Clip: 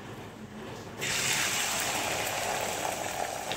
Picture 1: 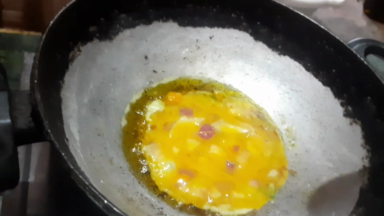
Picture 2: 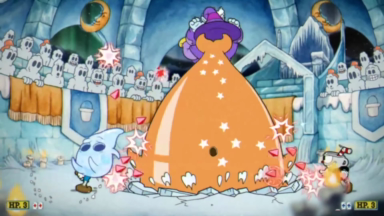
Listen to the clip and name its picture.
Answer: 1